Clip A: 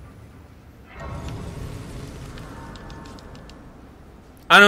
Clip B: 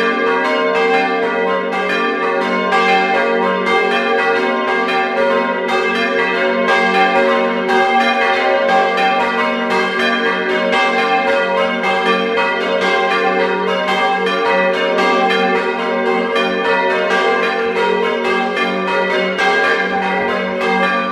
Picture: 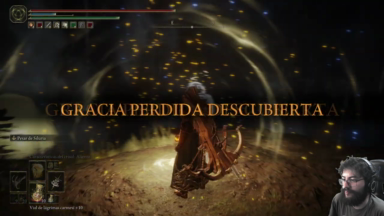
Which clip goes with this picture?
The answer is A